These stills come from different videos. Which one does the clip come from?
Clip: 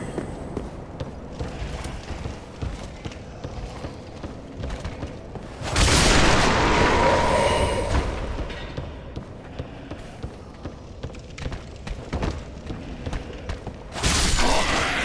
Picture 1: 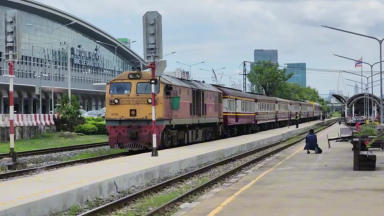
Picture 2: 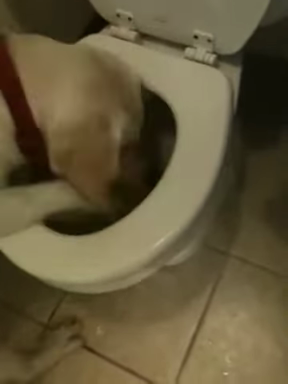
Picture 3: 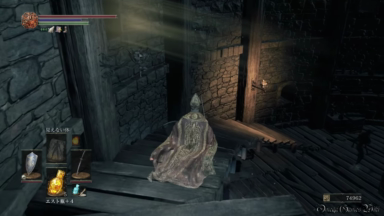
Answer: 3